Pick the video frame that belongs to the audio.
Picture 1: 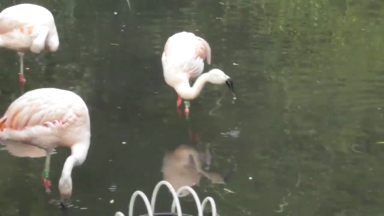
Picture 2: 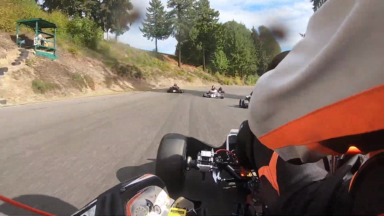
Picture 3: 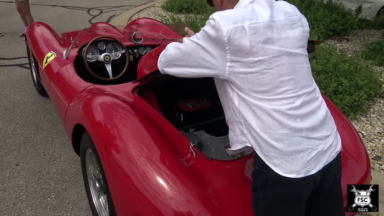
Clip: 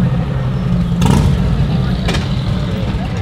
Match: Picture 3